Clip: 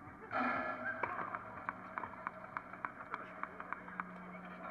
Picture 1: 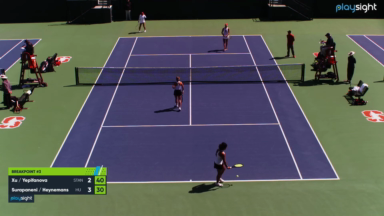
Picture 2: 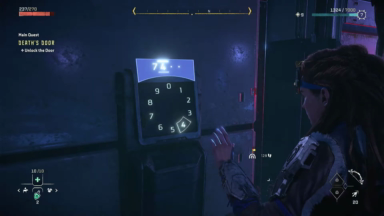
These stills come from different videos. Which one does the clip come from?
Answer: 1